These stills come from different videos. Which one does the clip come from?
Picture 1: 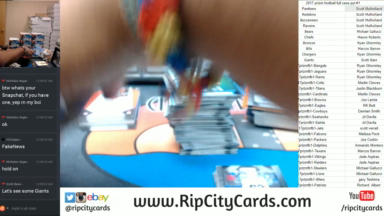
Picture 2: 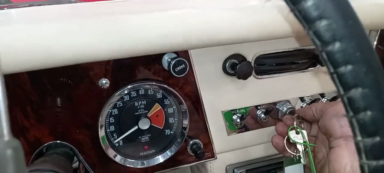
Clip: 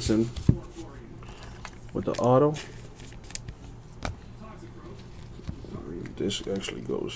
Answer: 1